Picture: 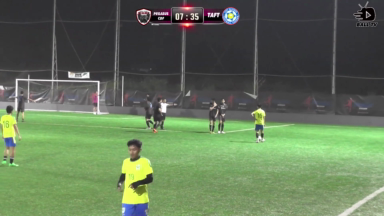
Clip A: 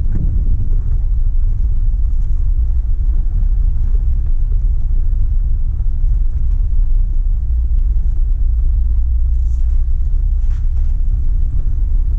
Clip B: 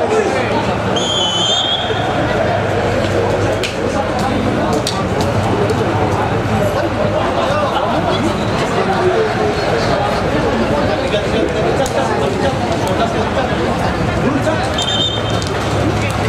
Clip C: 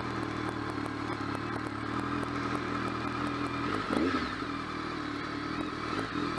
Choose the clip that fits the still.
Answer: B